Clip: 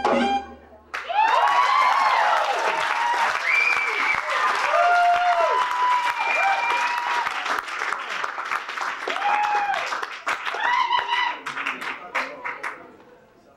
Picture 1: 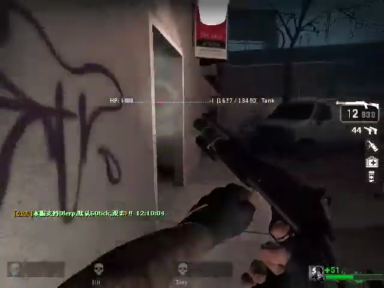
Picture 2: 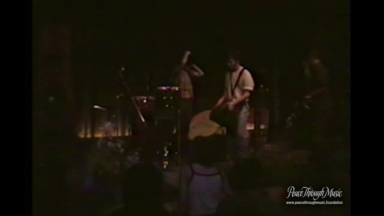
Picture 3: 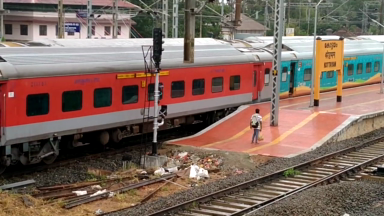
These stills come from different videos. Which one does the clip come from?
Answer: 2